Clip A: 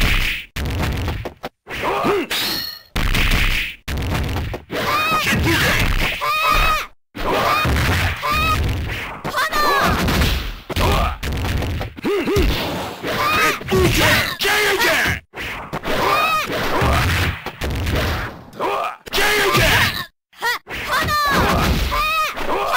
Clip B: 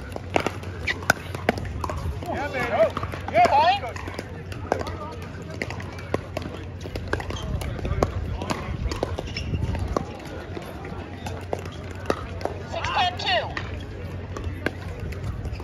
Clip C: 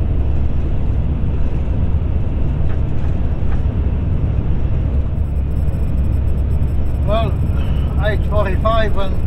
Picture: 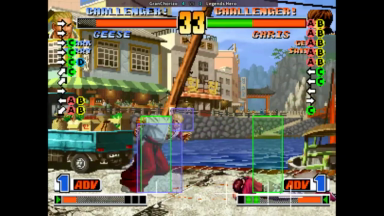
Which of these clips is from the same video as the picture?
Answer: A